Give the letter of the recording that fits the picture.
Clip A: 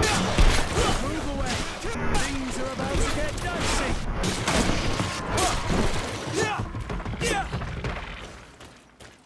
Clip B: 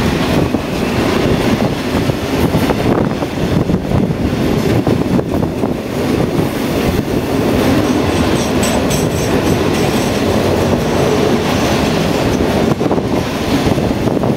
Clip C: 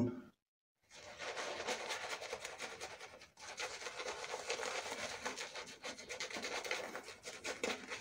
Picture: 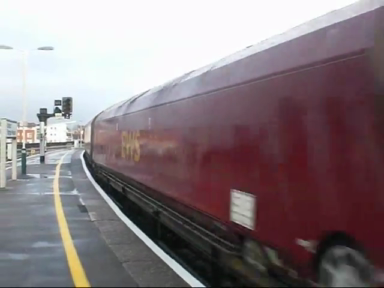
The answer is B